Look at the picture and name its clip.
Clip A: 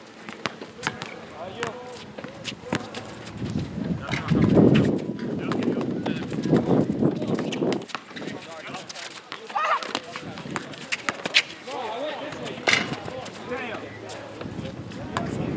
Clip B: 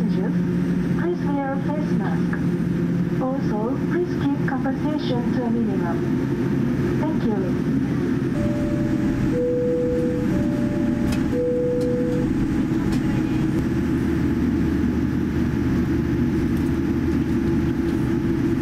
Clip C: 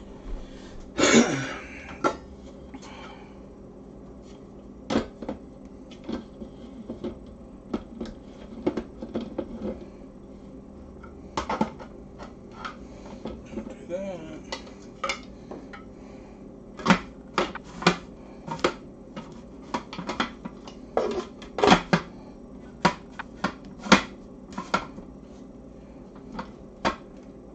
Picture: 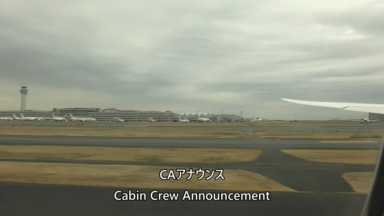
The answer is B